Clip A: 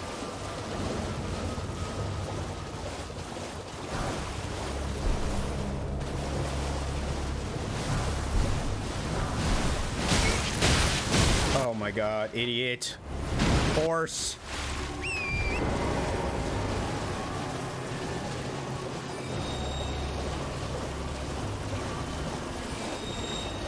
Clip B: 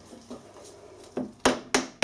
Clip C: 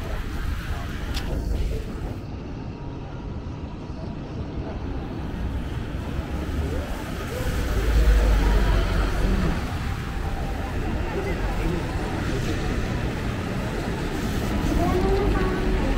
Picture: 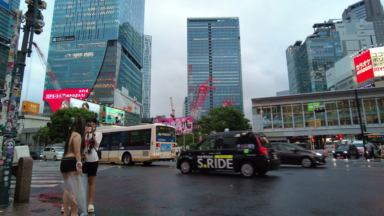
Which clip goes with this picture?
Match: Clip C